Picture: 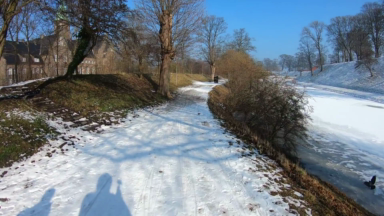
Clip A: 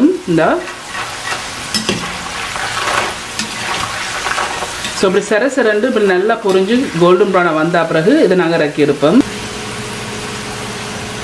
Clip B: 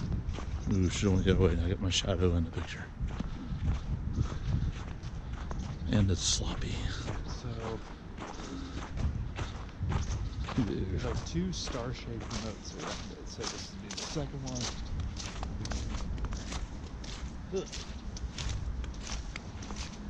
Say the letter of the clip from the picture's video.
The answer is B